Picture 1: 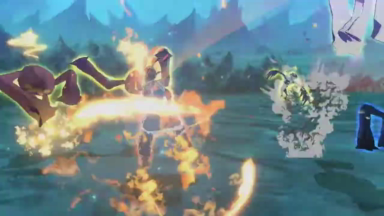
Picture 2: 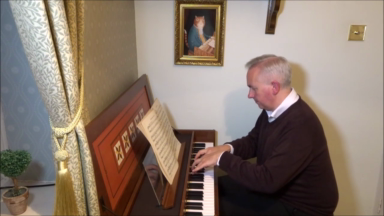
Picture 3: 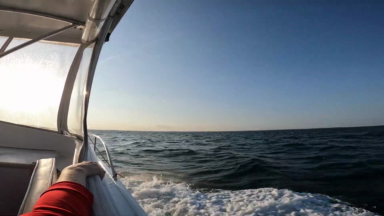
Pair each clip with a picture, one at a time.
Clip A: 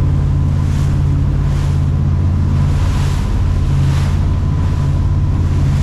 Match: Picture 3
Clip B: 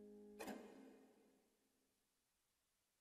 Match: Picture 2